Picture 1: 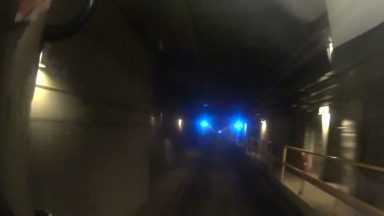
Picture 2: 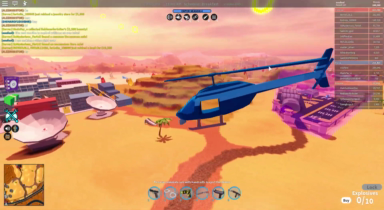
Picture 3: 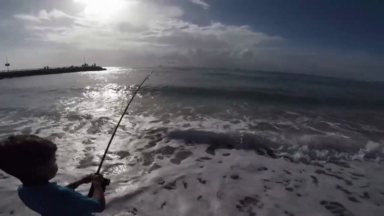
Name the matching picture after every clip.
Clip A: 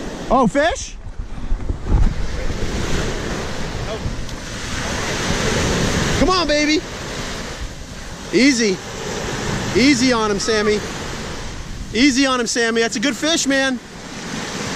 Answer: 3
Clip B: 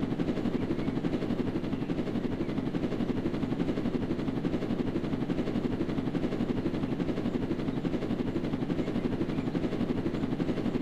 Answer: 2